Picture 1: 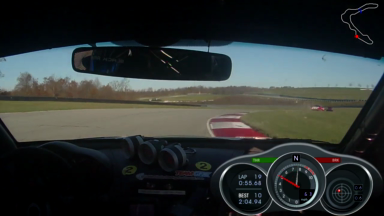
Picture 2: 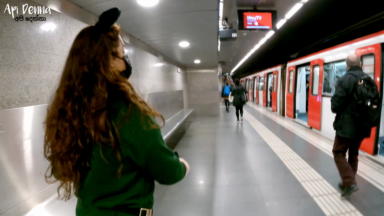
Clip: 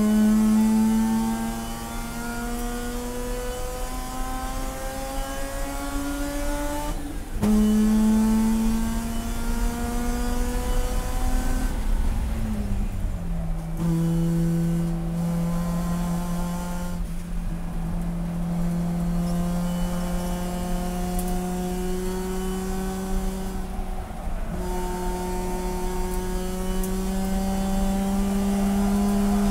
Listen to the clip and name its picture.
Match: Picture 1